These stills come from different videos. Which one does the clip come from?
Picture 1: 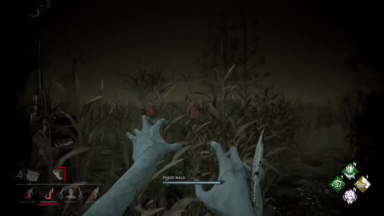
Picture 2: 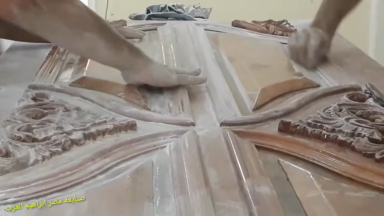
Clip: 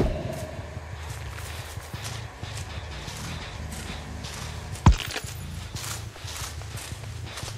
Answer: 1